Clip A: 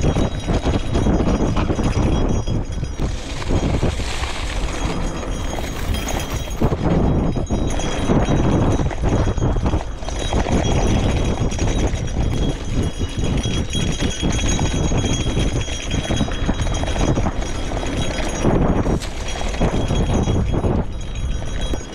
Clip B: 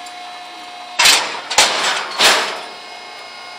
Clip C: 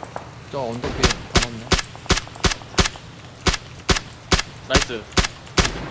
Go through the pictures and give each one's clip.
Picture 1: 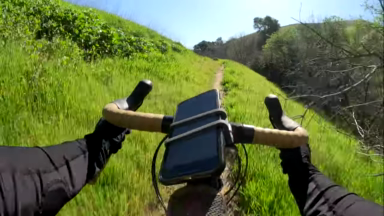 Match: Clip A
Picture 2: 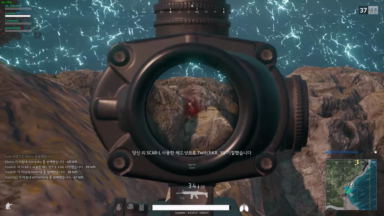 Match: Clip C